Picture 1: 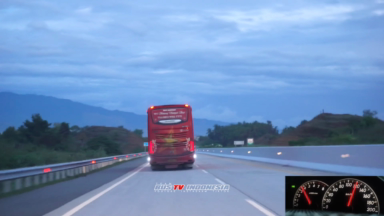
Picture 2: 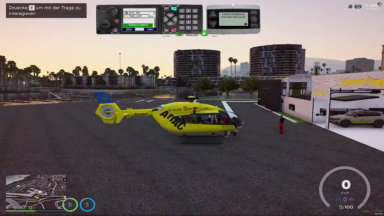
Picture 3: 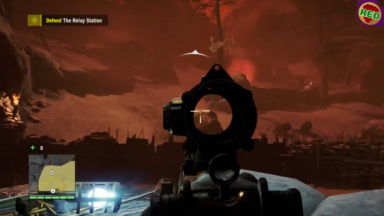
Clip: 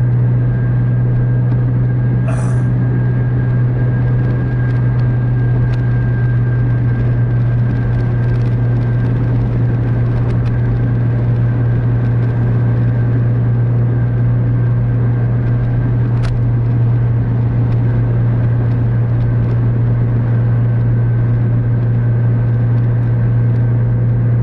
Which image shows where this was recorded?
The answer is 1